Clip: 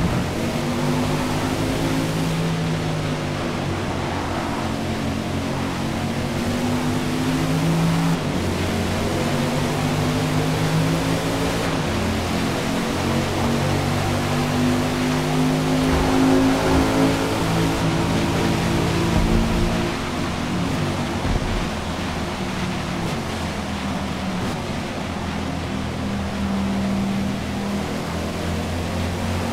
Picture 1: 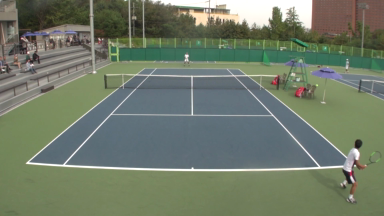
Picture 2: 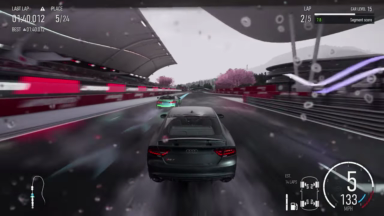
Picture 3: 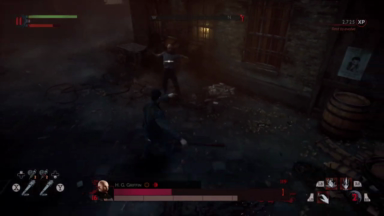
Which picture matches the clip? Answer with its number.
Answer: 2